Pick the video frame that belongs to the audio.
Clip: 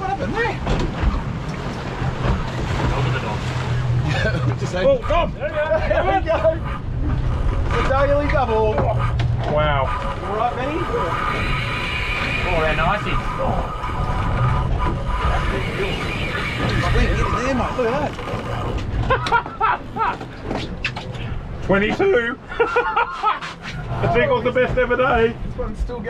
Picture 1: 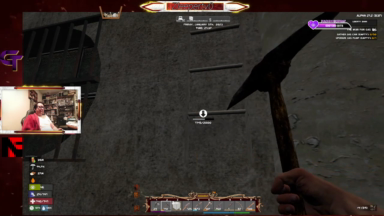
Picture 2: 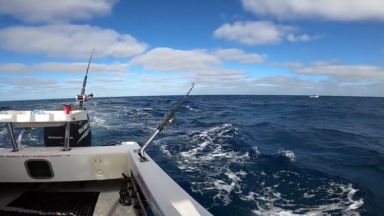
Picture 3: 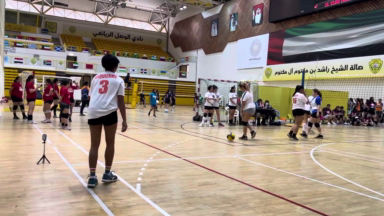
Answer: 2